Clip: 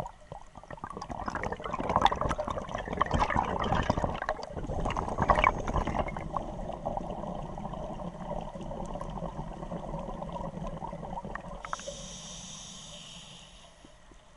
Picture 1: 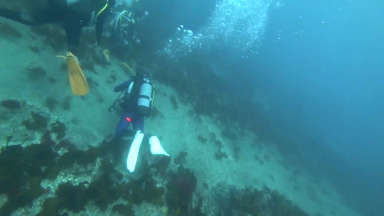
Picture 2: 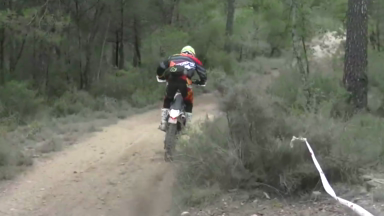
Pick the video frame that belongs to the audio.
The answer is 1